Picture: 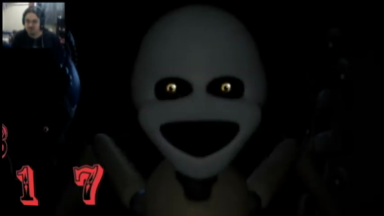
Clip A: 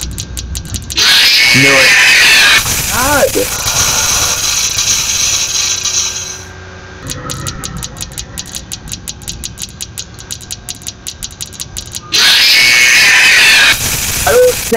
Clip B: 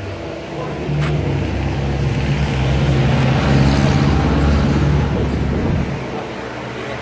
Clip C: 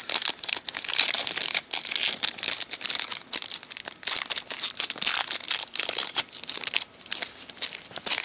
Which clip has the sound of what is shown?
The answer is A